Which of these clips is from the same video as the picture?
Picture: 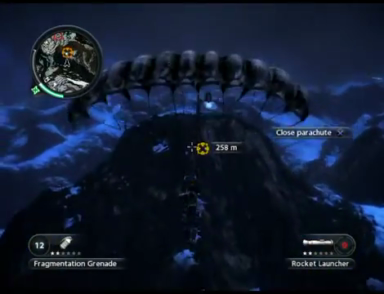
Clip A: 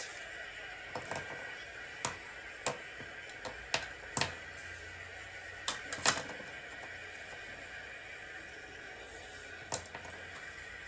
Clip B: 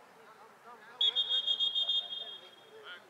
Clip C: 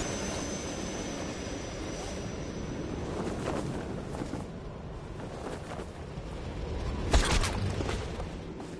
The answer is C